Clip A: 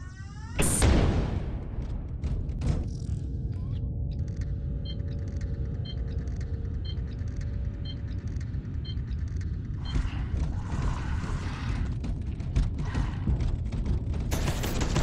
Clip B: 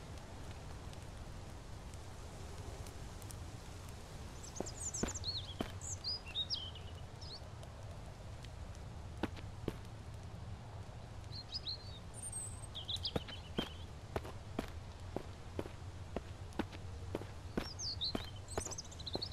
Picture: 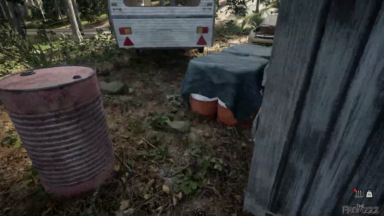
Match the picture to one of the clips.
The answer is B